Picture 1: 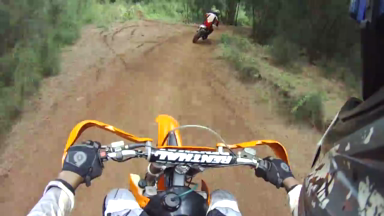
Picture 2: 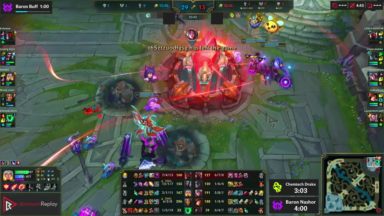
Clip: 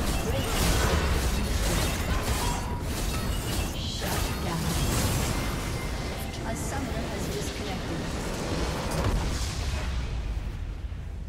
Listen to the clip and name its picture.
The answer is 2